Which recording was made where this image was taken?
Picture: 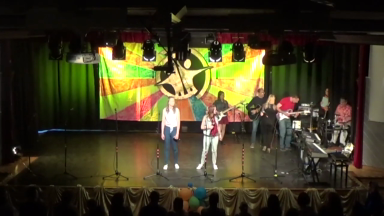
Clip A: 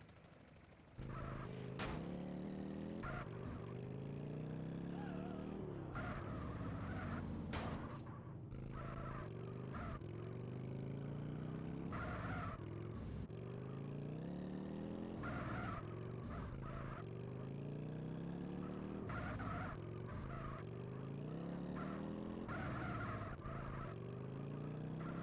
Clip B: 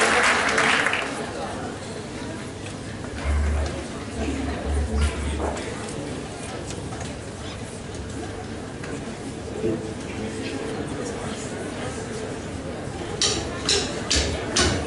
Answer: B